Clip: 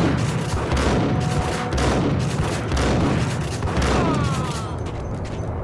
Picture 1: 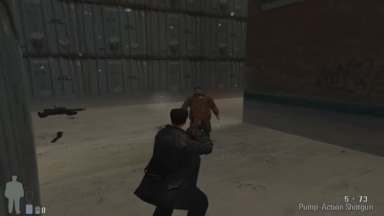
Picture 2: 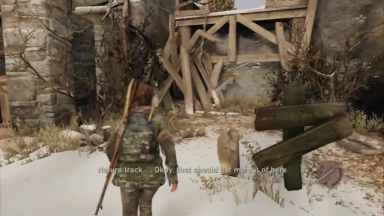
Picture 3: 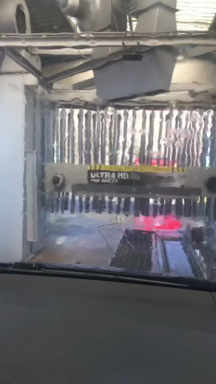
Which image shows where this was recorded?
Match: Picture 1